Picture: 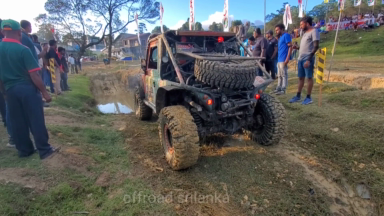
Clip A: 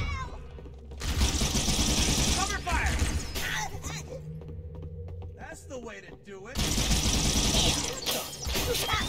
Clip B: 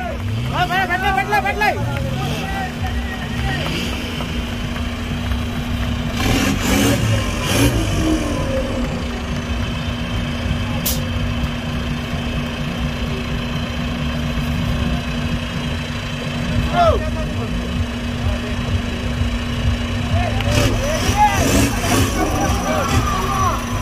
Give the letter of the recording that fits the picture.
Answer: B